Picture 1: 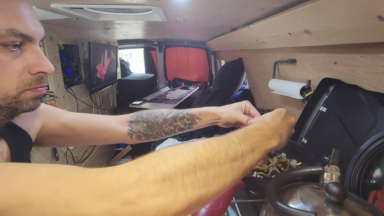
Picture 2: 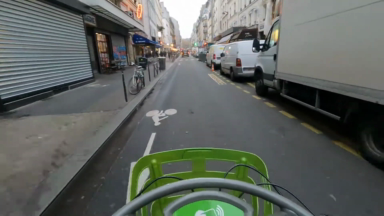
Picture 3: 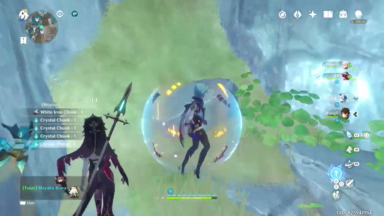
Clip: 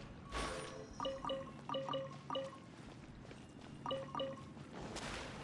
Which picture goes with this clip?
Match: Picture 3